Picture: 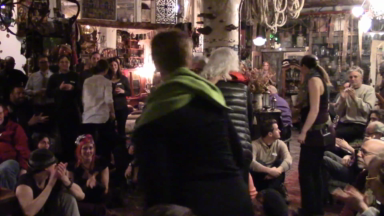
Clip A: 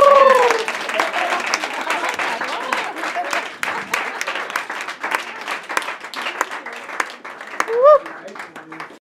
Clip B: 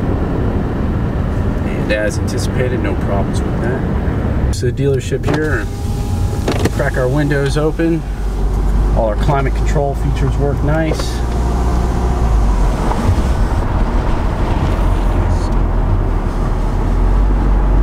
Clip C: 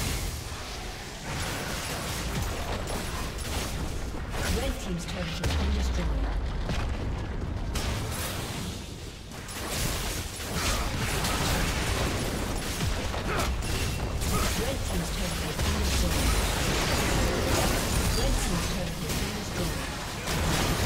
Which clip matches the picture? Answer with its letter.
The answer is A